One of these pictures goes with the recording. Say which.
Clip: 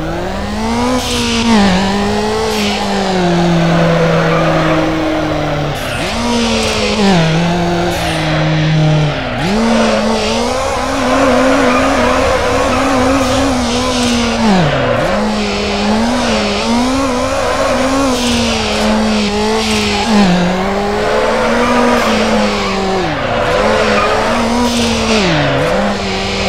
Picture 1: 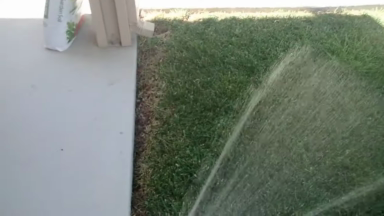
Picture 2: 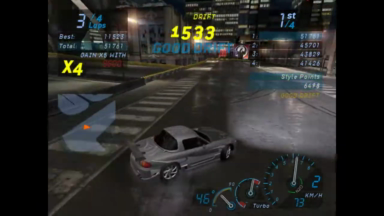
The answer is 2